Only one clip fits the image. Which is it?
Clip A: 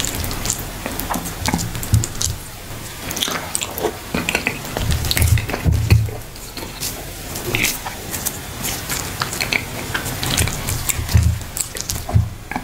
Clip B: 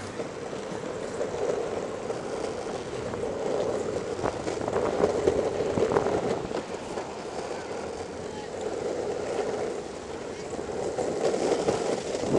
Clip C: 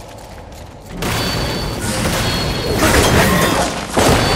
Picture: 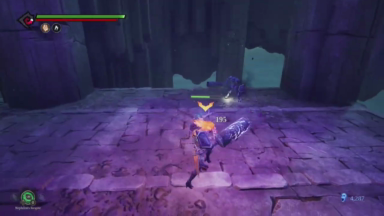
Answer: C